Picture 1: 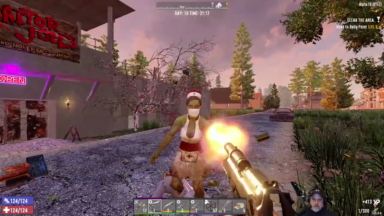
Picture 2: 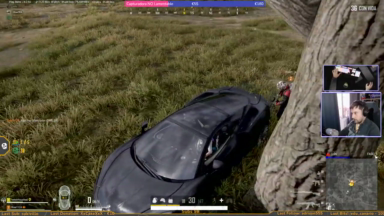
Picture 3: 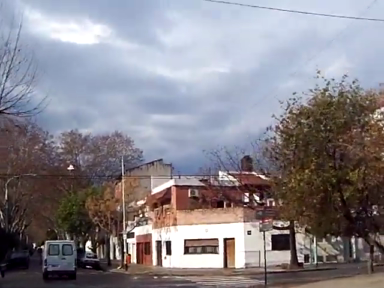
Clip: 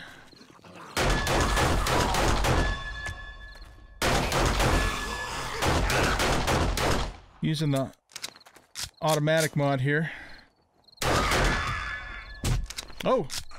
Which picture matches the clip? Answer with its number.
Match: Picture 1